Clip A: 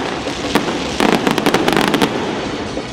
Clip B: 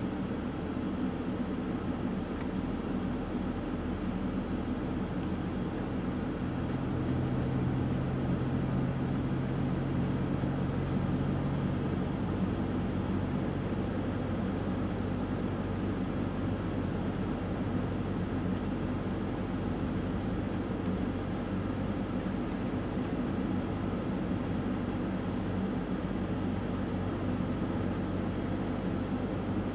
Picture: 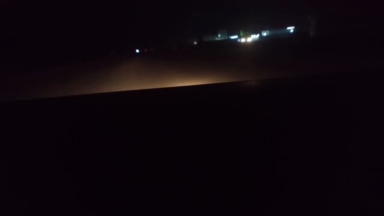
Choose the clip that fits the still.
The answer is B